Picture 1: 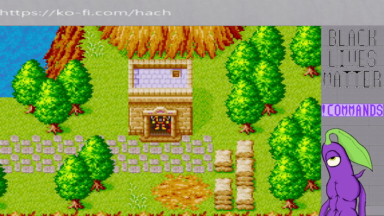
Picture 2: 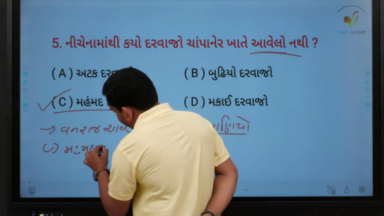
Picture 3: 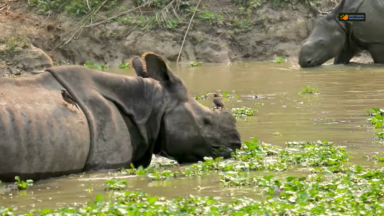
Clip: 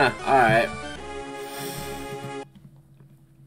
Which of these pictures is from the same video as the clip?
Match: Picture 1